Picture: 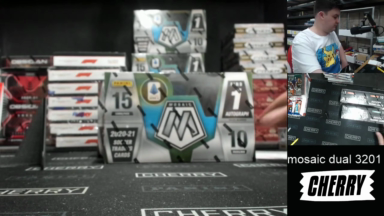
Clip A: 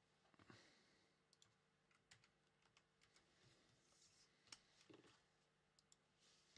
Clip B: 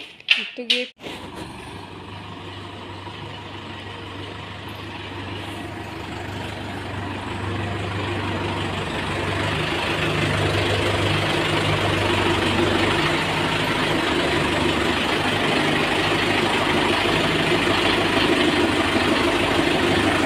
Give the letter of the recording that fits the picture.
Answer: A